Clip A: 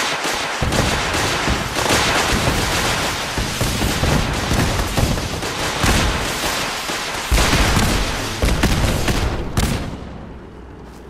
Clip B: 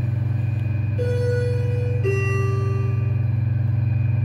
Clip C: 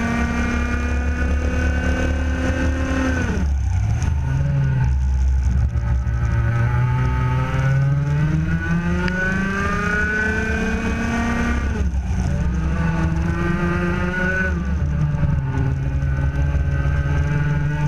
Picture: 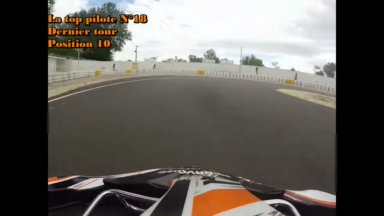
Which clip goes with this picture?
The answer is C